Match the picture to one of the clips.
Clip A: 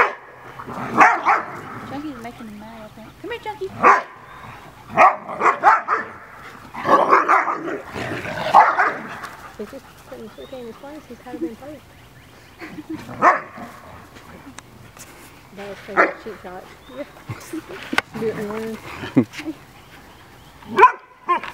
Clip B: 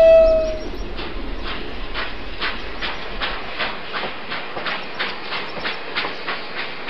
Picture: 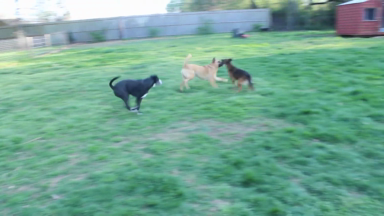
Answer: A